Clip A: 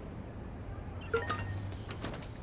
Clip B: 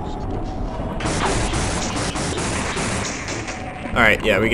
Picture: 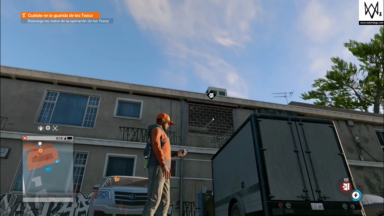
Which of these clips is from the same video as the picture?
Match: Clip A